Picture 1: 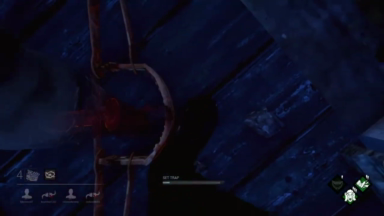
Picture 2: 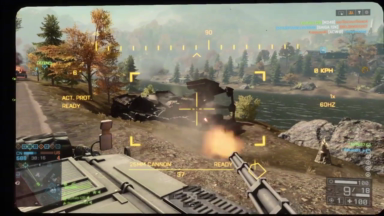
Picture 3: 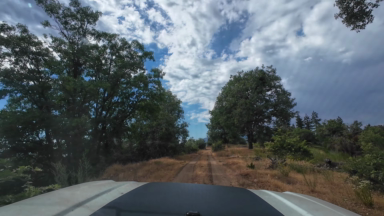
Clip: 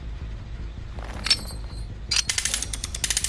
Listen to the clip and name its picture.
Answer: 1